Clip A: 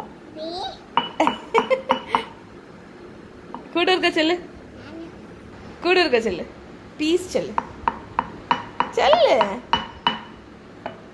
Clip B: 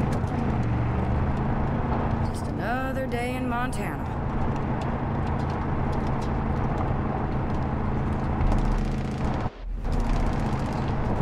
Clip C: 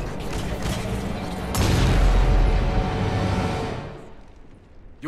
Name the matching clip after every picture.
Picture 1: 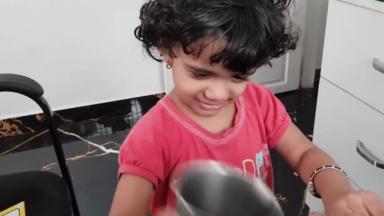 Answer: A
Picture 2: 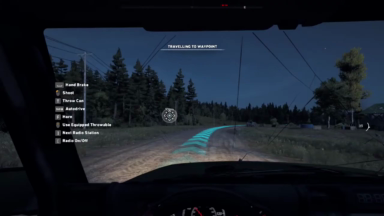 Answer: B